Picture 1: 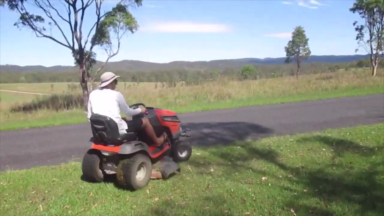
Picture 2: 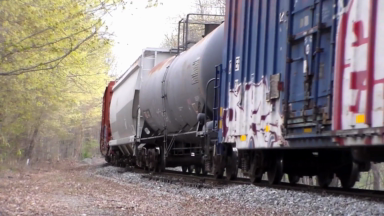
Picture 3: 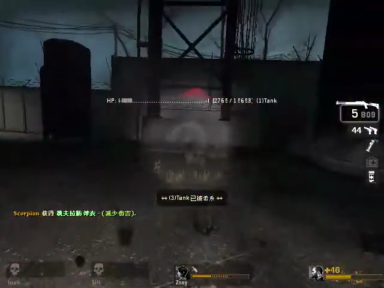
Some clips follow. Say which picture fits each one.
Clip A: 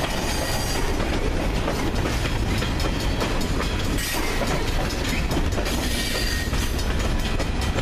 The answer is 2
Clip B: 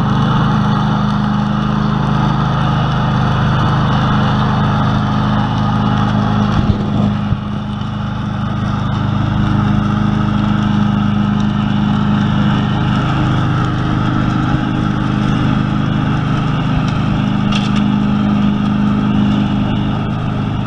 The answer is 1